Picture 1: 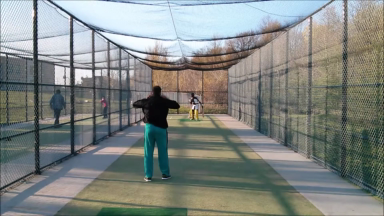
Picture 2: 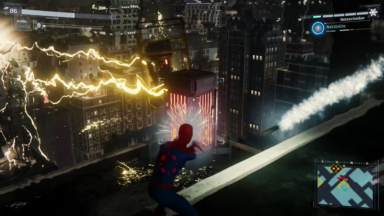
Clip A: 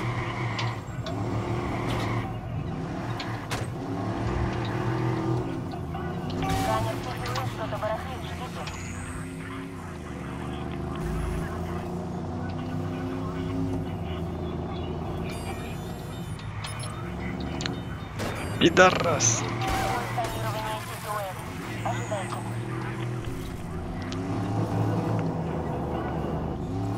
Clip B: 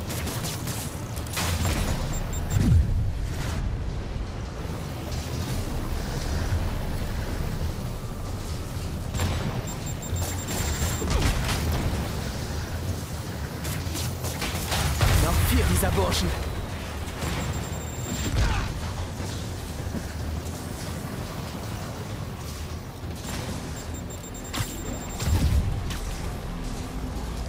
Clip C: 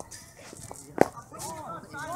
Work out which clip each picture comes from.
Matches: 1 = C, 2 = B